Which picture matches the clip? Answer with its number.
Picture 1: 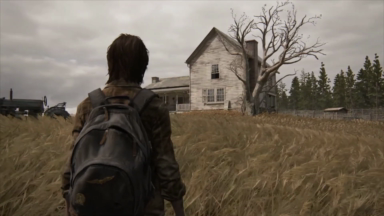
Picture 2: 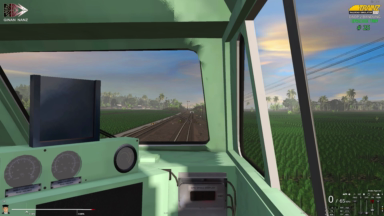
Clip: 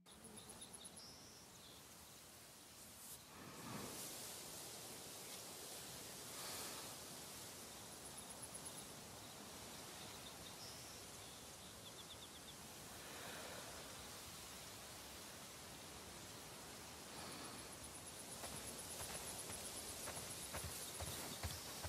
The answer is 1